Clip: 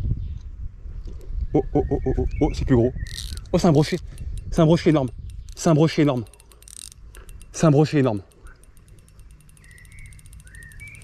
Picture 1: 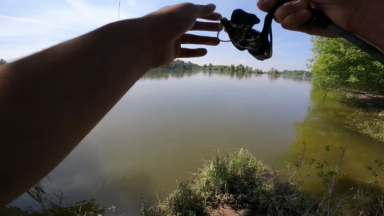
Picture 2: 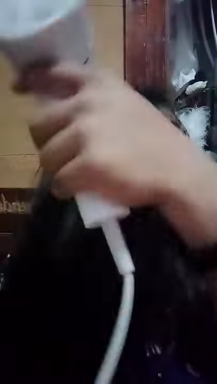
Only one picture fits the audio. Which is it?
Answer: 1